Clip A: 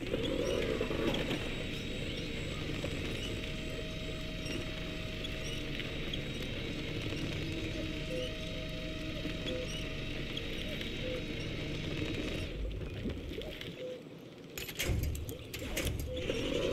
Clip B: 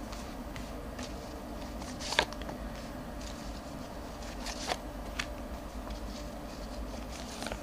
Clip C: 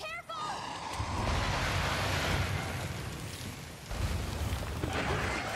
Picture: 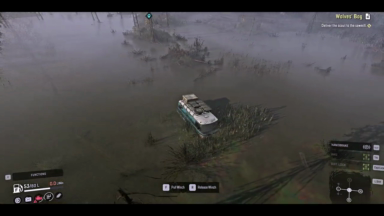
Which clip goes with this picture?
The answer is A